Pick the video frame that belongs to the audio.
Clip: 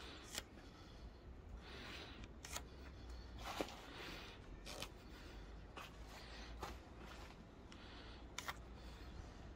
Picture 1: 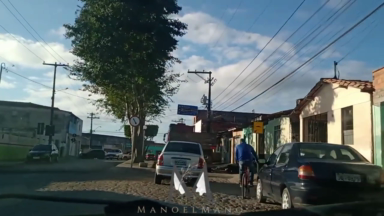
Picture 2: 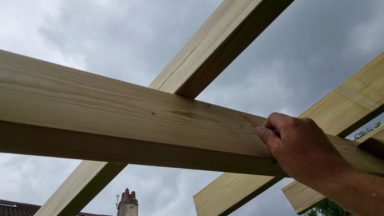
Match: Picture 2